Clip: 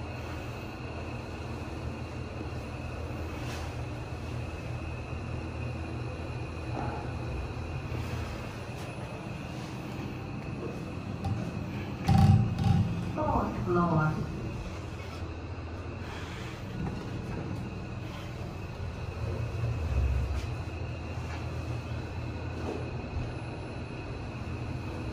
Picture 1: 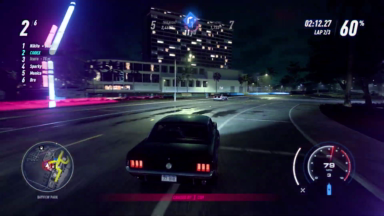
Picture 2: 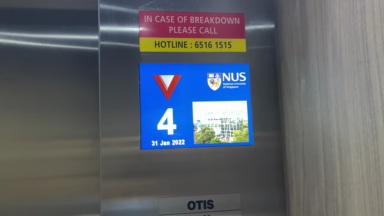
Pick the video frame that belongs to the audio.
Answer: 2